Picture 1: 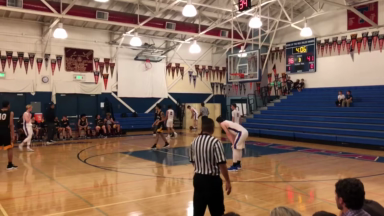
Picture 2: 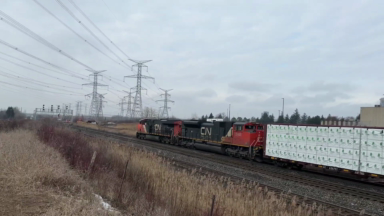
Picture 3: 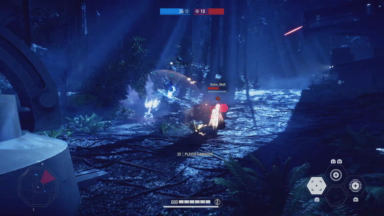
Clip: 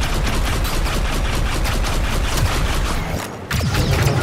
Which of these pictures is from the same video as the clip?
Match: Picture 3